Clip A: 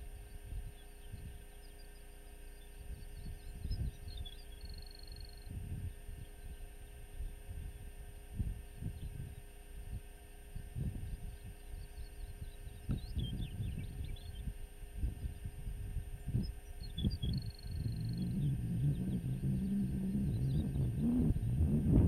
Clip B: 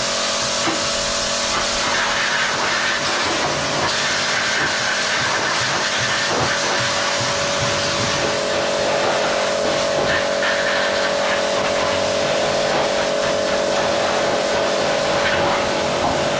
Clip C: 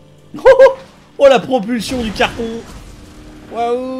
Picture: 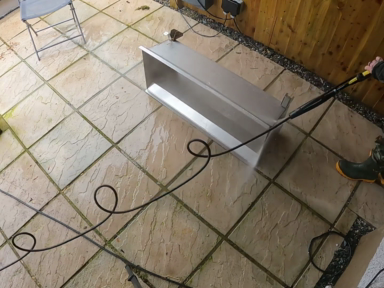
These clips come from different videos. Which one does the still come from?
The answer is B